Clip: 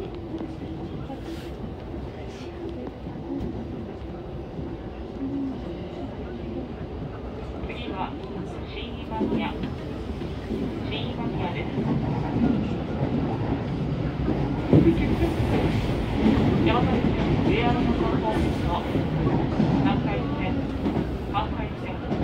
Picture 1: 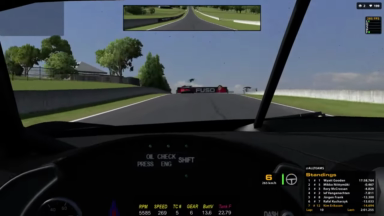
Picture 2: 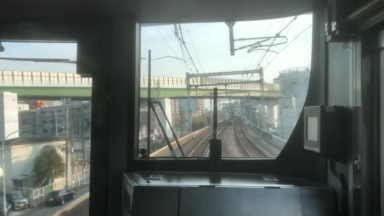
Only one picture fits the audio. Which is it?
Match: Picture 2